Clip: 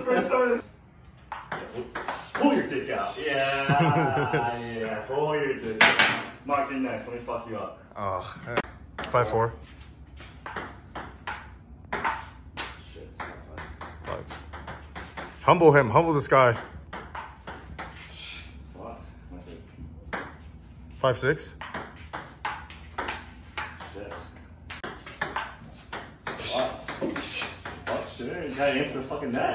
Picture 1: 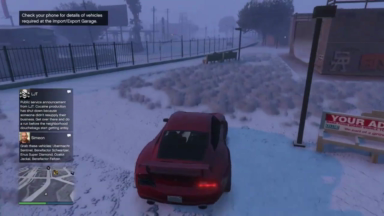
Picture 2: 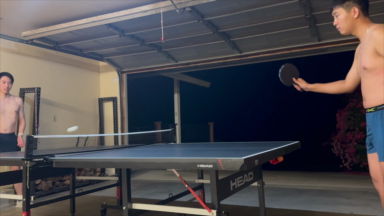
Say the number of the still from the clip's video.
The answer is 2